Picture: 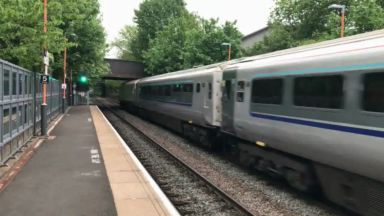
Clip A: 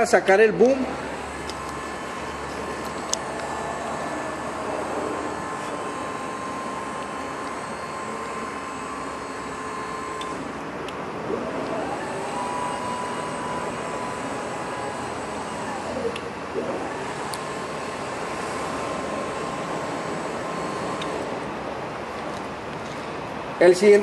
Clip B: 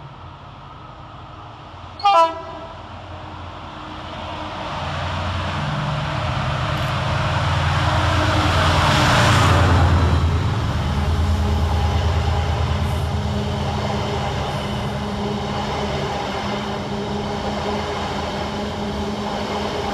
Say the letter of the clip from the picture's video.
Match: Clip B